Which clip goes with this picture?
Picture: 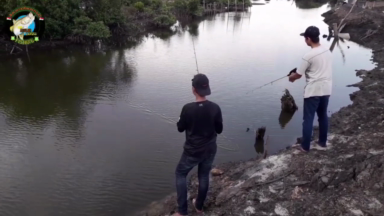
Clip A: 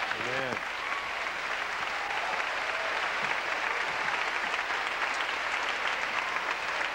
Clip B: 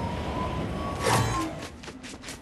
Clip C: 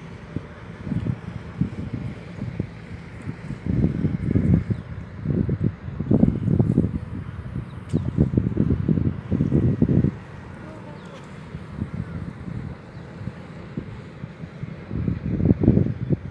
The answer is C